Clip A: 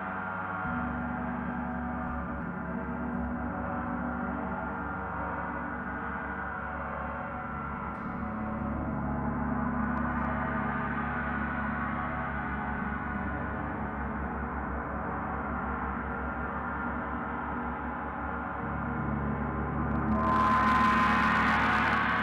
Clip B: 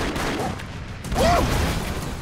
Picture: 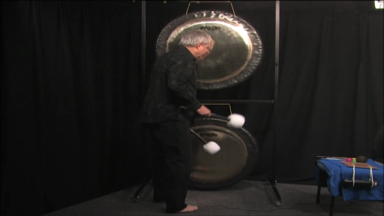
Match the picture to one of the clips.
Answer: A